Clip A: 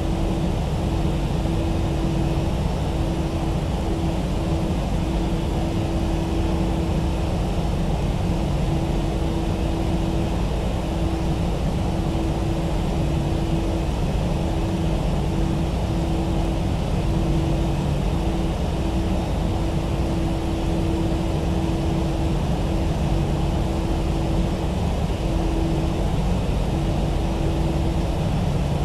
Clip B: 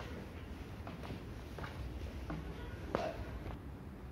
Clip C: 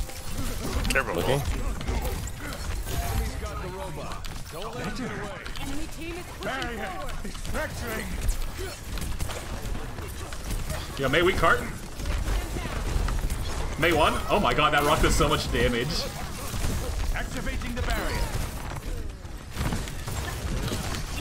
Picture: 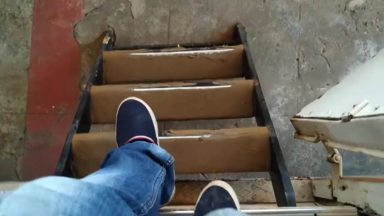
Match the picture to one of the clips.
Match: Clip B